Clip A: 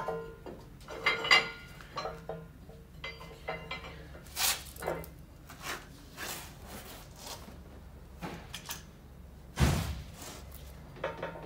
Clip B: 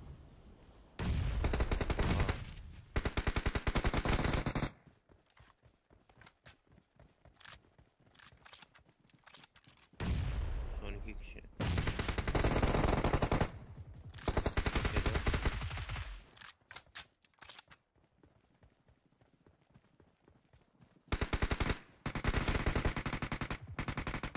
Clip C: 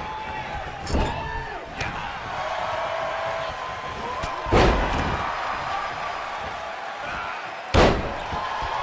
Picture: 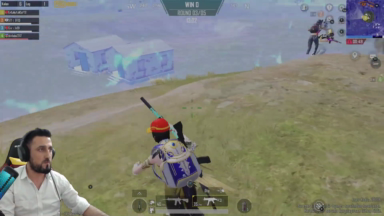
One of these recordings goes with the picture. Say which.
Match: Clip B